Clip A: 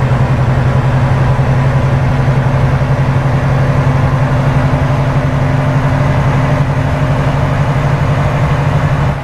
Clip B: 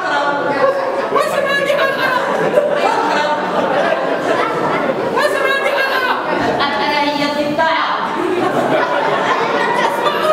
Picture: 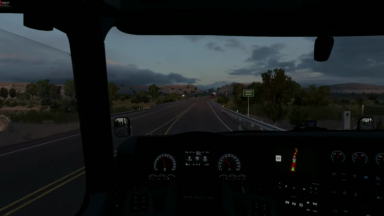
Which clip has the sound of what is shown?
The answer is A